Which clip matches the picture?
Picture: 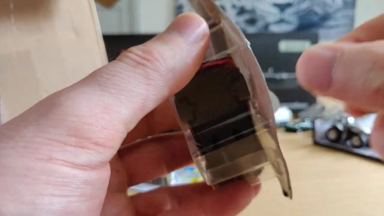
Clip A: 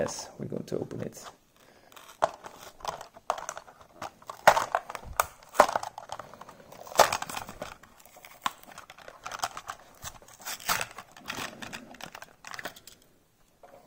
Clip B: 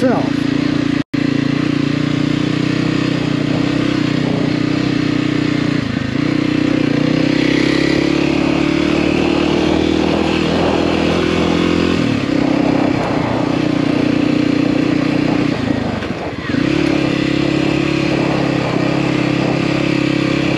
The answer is A